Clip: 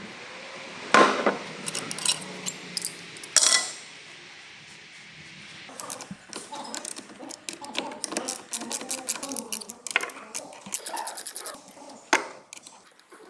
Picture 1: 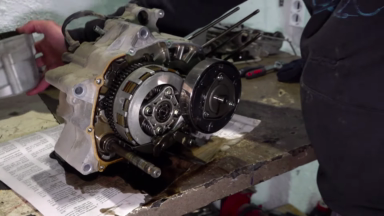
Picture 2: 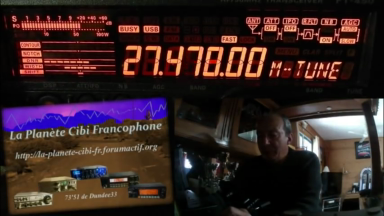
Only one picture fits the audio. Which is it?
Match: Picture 1